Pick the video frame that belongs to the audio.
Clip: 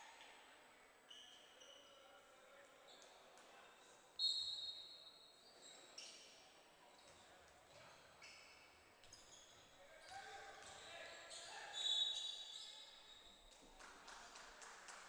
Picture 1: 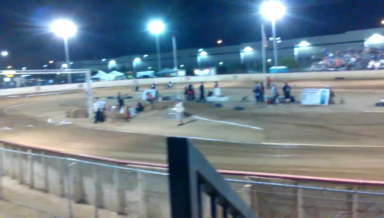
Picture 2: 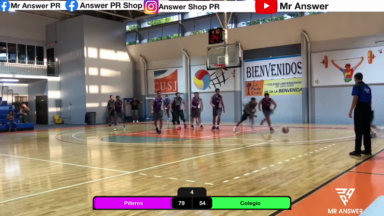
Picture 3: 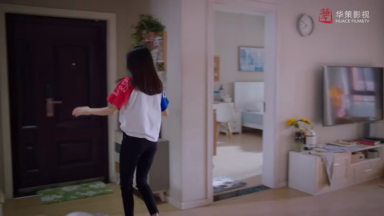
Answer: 2